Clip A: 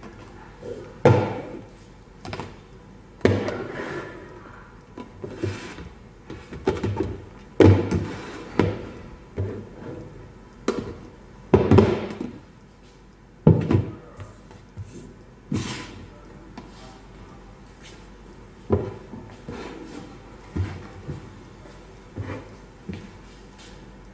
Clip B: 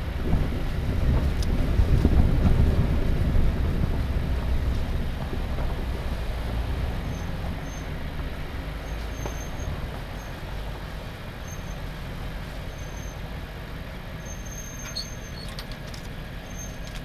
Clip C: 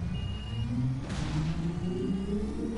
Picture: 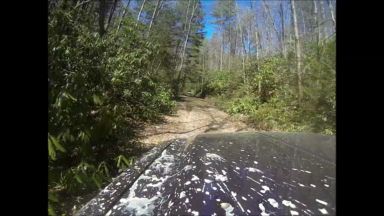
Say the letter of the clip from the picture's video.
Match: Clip B